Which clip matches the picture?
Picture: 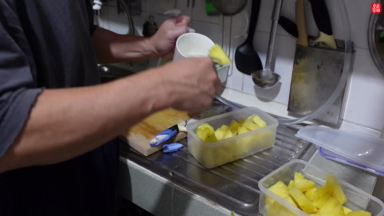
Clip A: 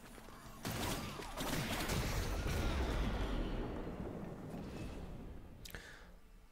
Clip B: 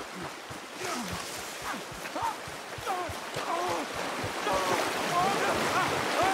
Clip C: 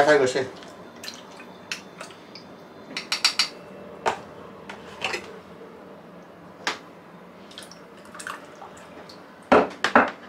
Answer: C